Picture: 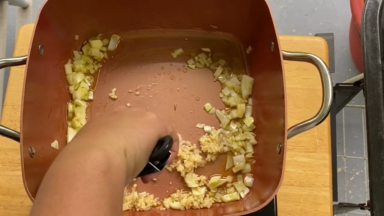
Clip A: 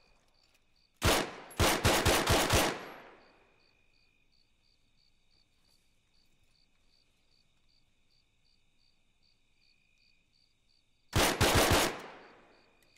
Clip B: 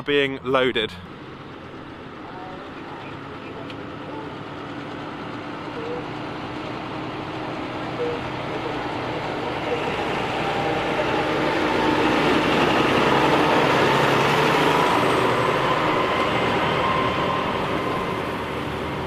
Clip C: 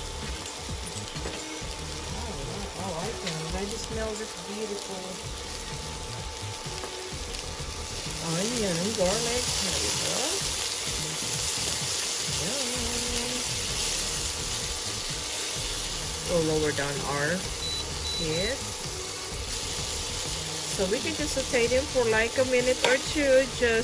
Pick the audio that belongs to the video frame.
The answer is C